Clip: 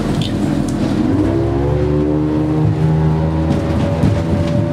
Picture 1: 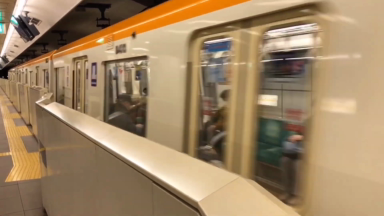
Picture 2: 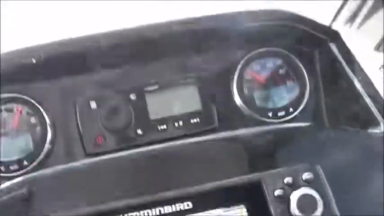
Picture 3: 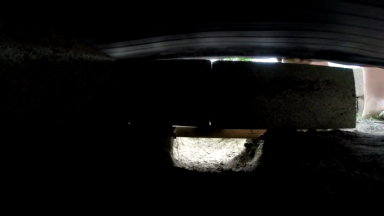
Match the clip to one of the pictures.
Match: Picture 2